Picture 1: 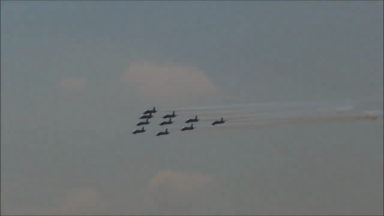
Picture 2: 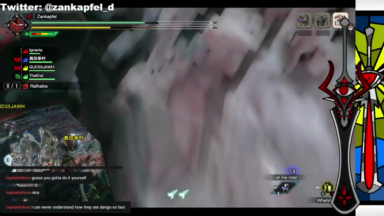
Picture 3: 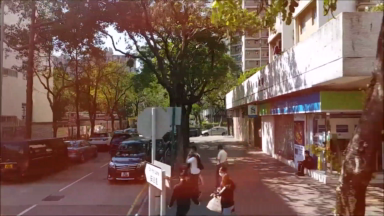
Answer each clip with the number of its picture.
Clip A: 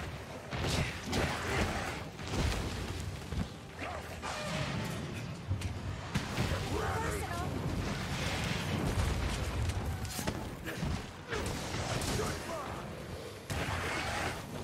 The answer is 2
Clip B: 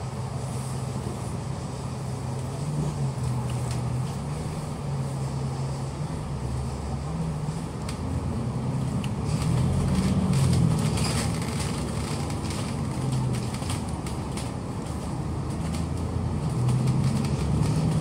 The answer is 3